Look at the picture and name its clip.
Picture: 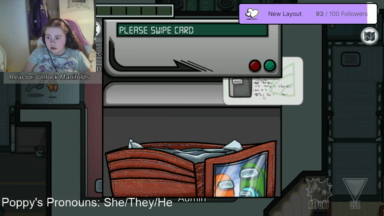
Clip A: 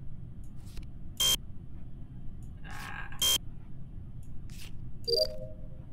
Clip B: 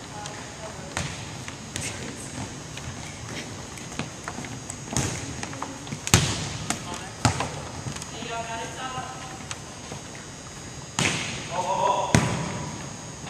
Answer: A